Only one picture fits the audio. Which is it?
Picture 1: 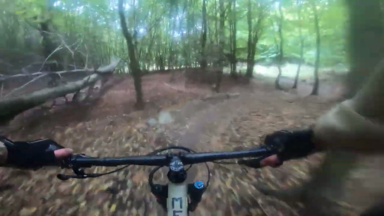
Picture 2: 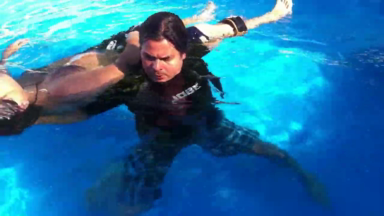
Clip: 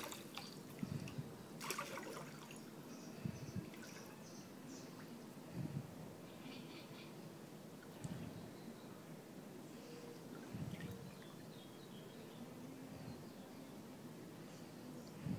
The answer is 2